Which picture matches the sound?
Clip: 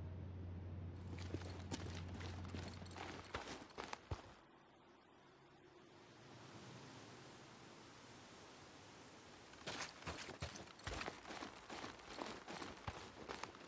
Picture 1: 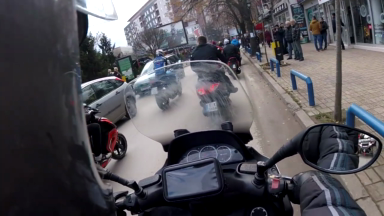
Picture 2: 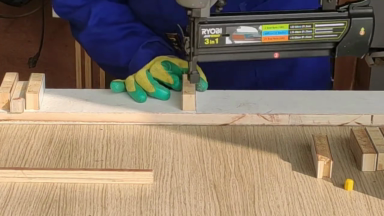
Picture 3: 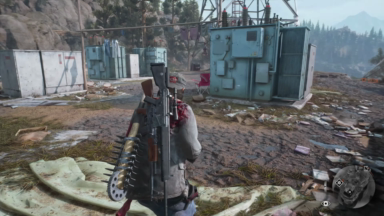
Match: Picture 3